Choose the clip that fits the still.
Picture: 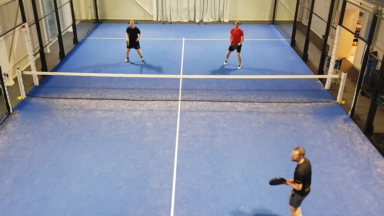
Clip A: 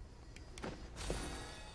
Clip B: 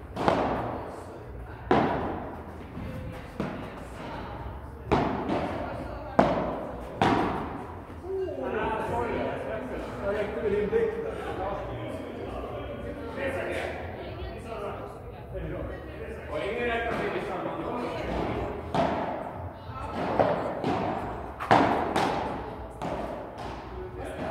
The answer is B